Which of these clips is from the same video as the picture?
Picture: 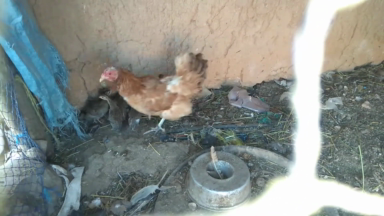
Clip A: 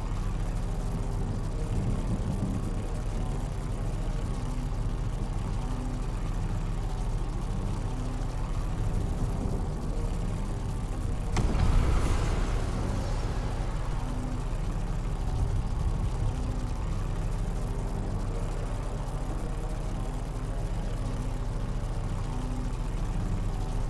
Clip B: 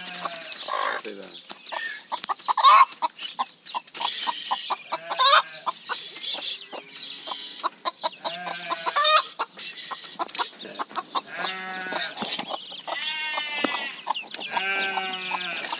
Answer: B